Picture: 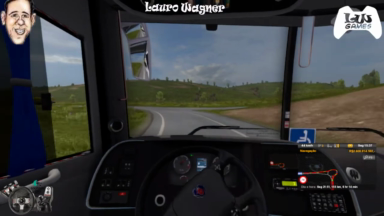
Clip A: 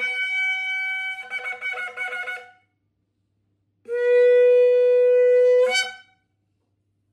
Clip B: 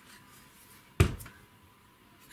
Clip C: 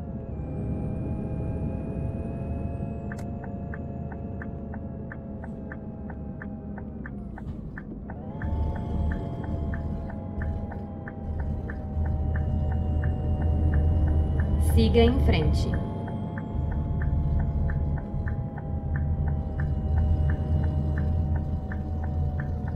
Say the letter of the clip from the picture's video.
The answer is C